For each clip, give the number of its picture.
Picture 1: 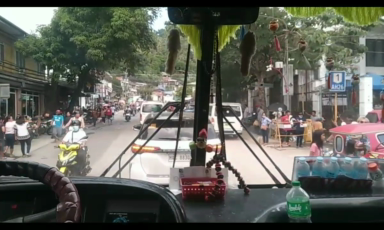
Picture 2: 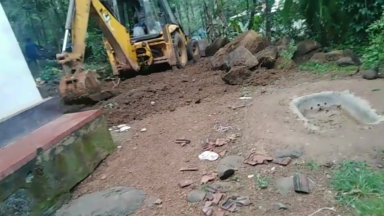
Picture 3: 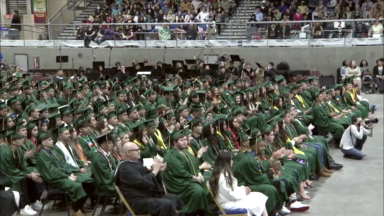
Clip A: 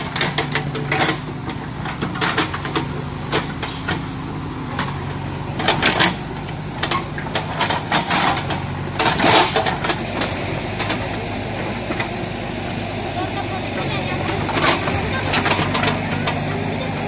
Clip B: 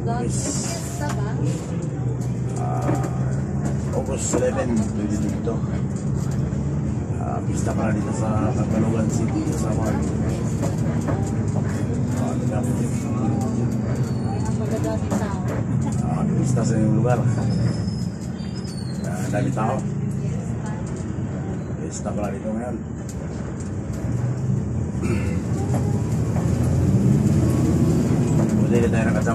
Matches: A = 2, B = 1